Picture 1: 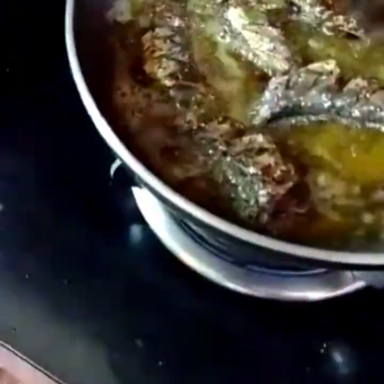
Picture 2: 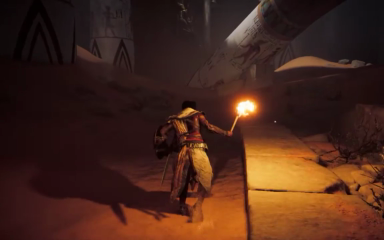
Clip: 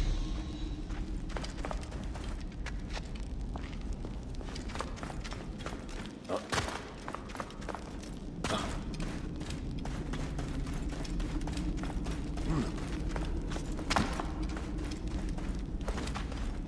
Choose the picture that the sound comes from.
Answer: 2